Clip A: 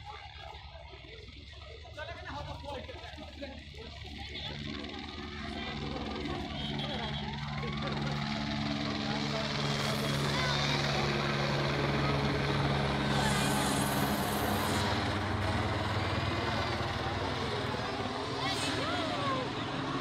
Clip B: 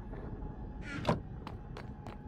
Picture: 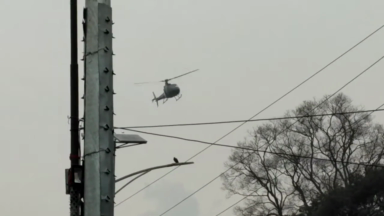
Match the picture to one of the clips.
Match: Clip A